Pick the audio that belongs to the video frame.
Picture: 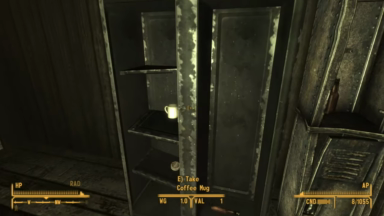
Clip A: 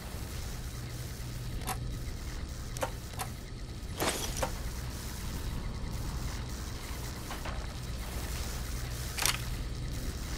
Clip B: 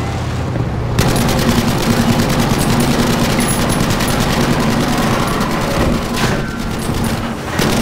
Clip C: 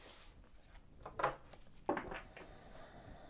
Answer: A